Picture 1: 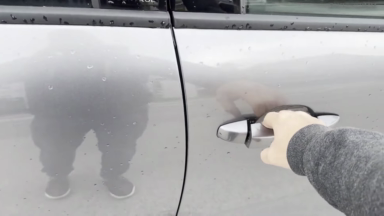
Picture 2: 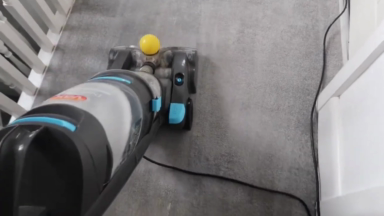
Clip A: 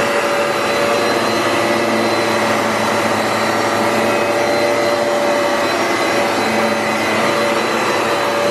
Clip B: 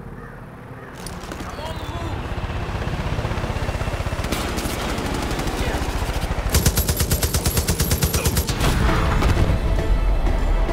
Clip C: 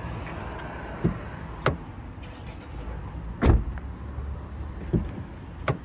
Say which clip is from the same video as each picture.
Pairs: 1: C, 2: A